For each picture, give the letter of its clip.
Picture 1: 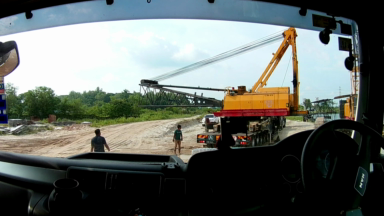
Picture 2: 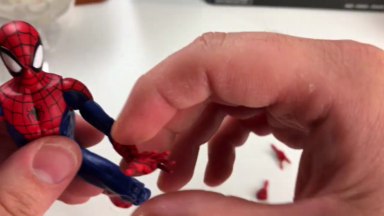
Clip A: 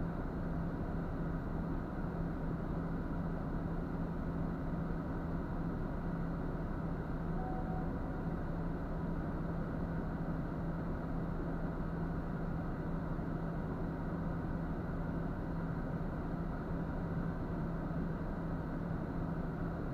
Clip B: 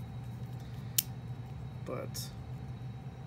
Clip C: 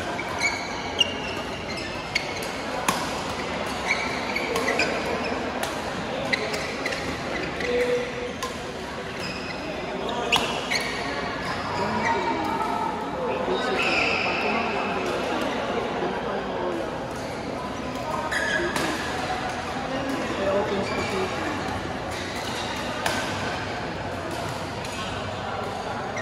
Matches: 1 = A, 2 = B